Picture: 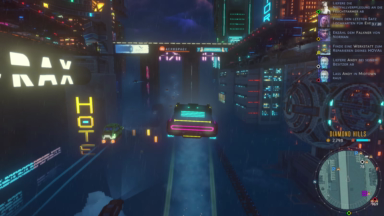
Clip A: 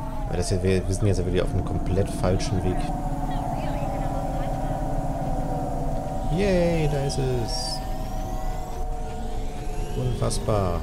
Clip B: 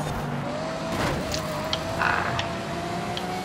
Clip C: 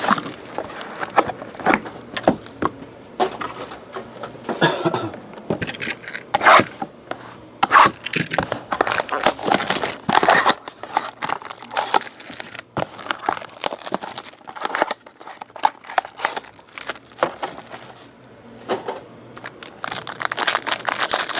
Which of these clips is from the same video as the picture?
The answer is A